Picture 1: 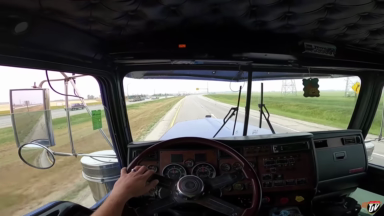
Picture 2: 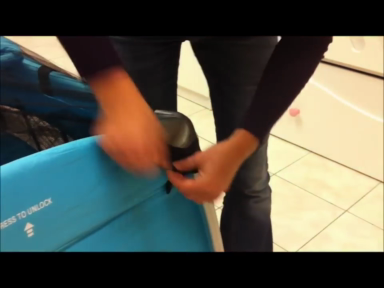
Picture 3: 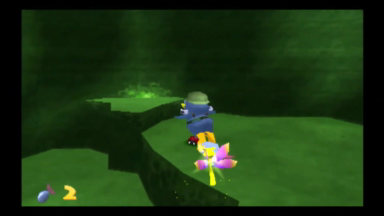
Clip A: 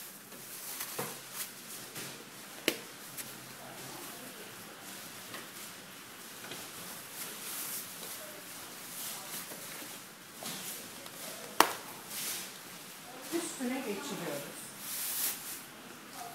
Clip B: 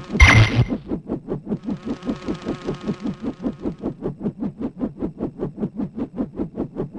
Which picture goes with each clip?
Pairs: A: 2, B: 3